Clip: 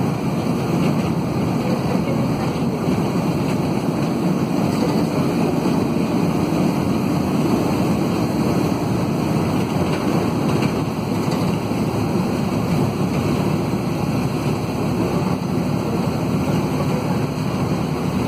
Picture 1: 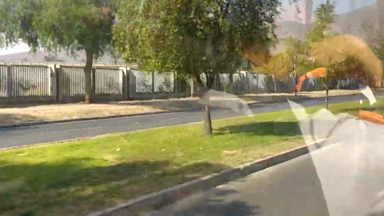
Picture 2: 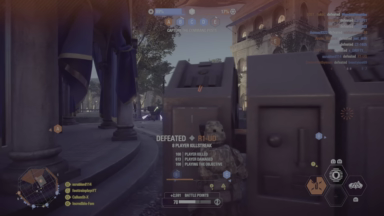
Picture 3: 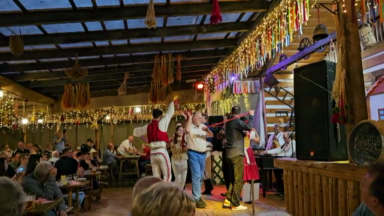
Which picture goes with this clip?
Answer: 1